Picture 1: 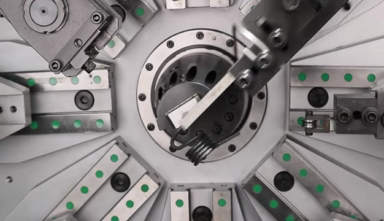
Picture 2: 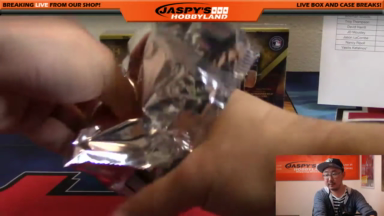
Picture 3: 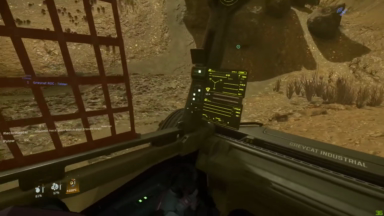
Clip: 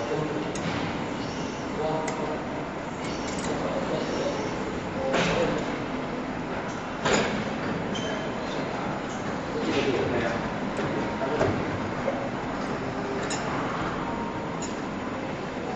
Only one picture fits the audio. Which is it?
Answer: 1